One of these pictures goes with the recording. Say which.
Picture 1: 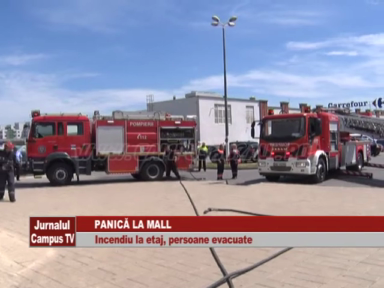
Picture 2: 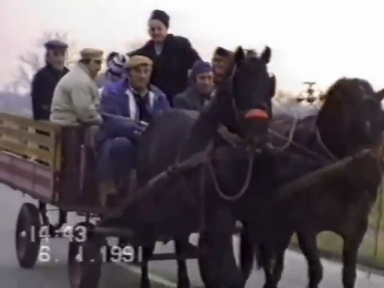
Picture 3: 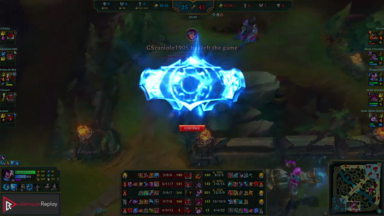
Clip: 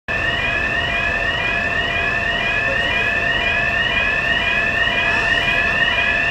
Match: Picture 1